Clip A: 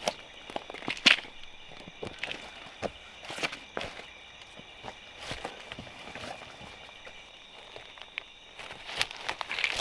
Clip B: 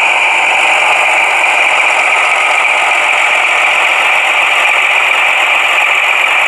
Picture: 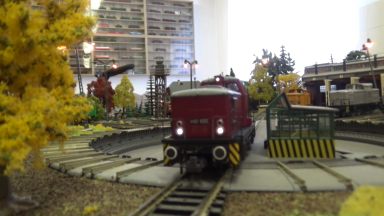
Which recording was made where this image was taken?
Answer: B